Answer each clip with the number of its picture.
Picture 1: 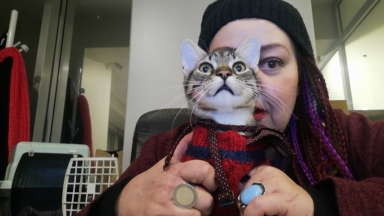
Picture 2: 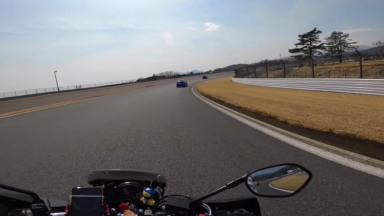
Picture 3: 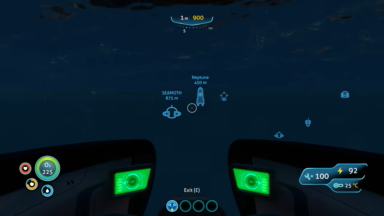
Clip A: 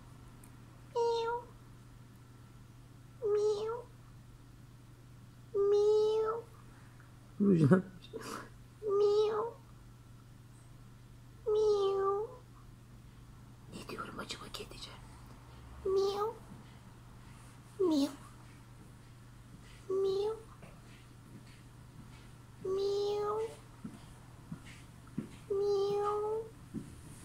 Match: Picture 1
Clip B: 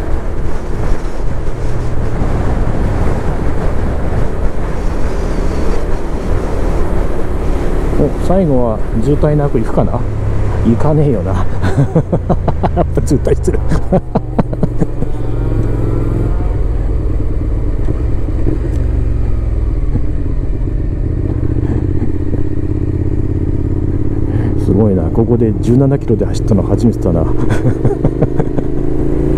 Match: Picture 2